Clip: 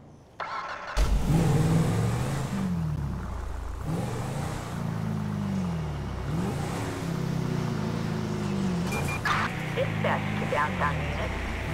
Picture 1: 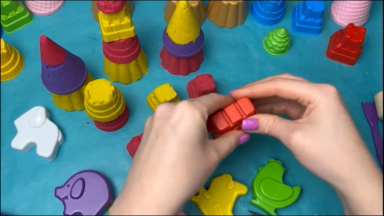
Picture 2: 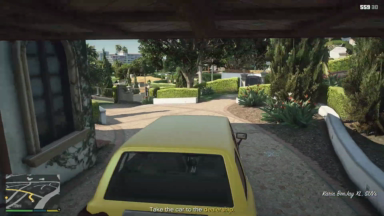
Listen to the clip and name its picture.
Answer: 2